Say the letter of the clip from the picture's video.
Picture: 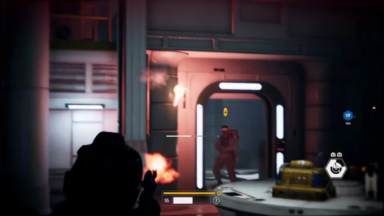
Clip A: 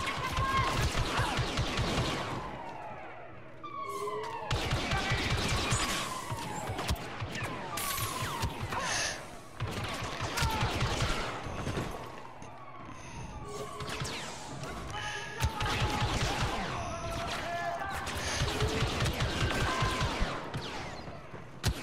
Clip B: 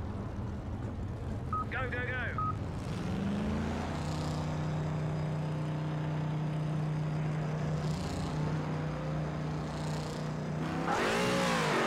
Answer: A